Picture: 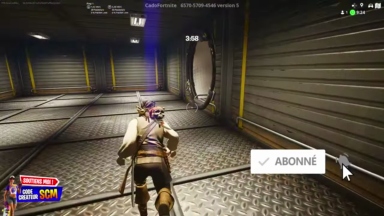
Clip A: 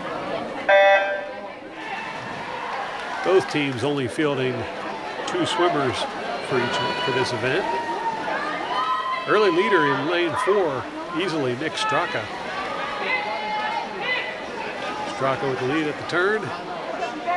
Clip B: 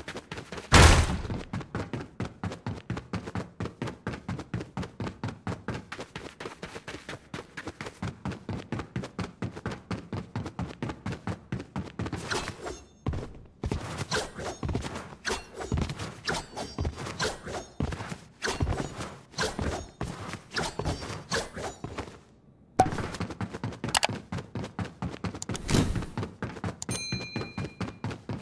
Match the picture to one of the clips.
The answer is B